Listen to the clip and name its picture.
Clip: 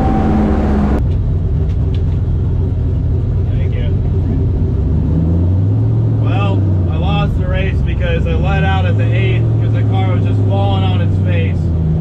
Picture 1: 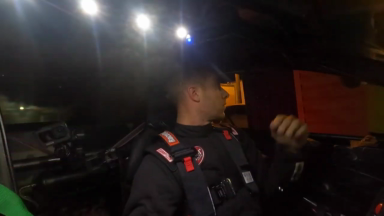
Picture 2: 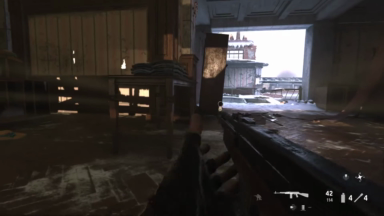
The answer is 1